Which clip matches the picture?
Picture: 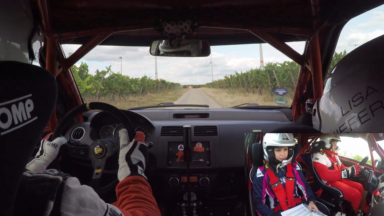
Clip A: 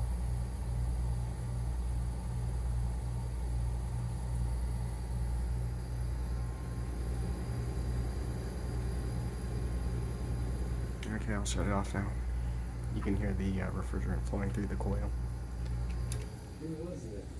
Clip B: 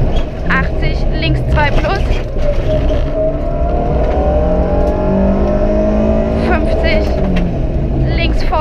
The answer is B